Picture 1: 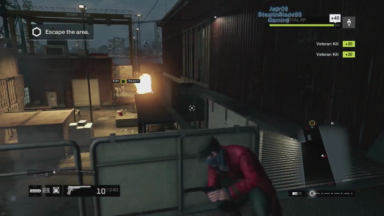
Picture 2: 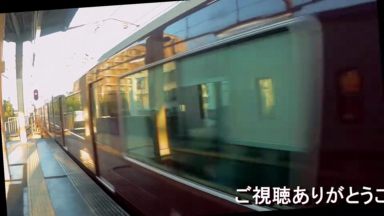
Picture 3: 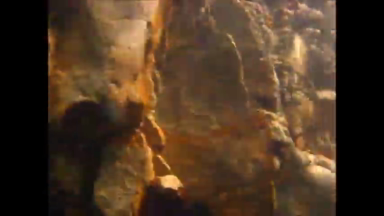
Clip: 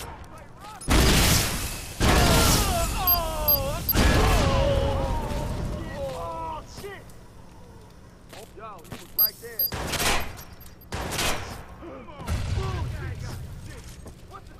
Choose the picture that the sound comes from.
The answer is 1